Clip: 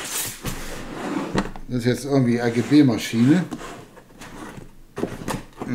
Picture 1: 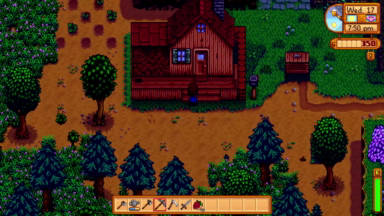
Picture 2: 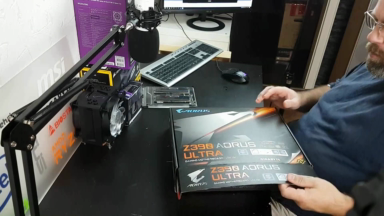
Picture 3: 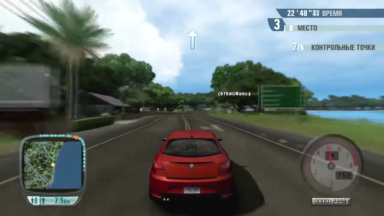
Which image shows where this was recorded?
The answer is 2